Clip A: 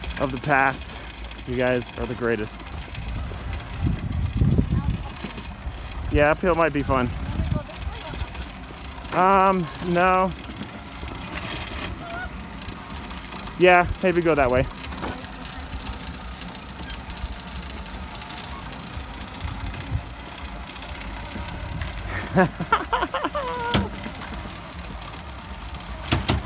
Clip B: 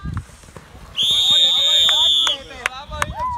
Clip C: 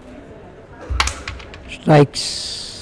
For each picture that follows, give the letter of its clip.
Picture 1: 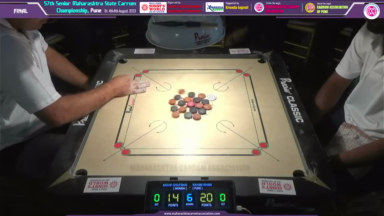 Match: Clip C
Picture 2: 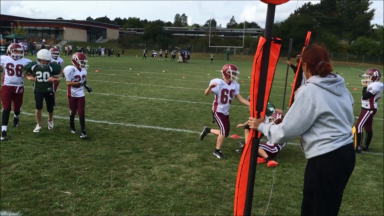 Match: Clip B